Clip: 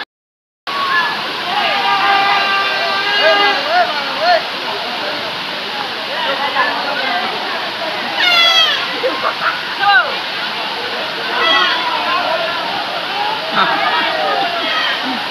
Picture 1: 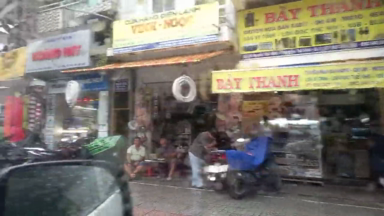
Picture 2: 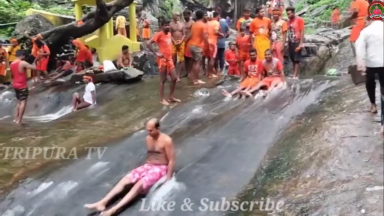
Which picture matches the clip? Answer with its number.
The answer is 2